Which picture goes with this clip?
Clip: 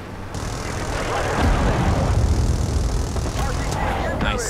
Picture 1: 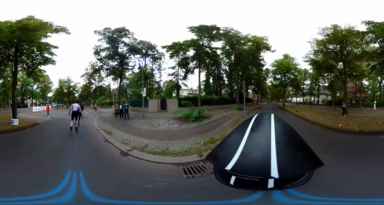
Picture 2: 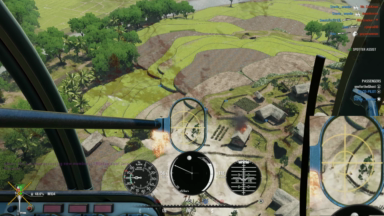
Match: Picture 2